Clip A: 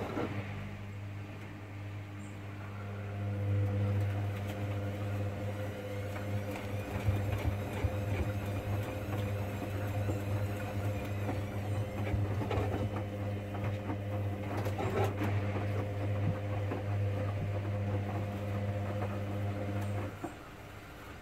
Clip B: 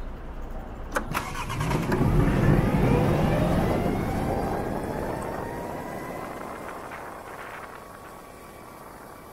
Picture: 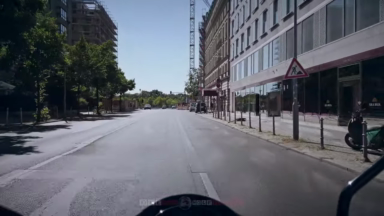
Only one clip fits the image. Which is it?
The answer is B